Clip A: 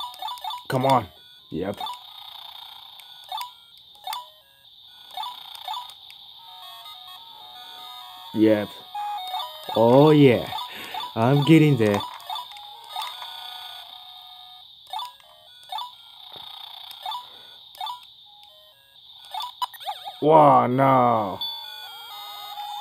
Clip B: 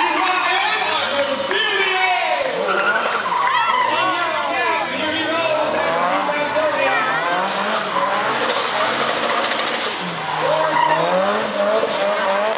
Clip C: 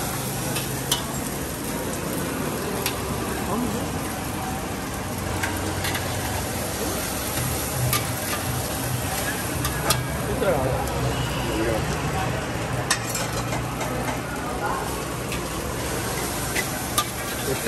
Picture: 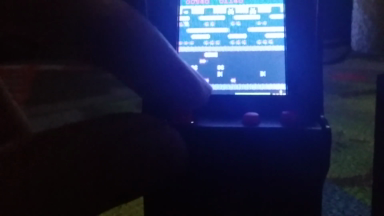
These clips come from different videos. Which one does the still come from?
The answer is A